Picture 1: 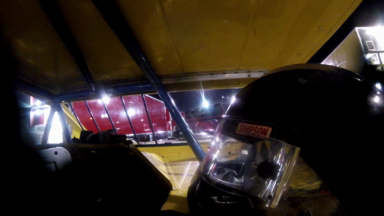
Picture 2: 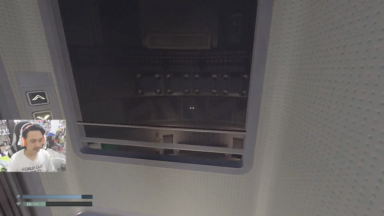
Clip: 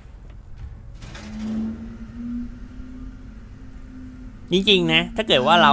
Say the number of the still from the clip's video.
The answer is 2